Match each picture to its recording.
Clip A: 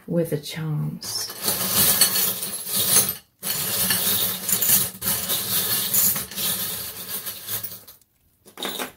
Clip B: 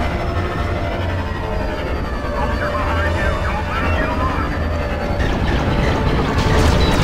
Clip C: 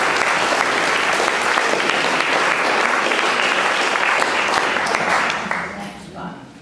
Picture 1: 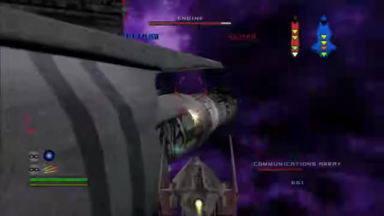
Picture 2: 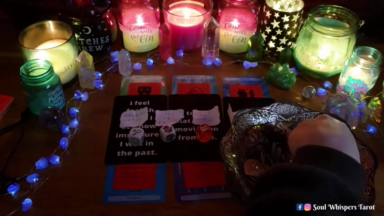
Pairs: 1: B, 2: A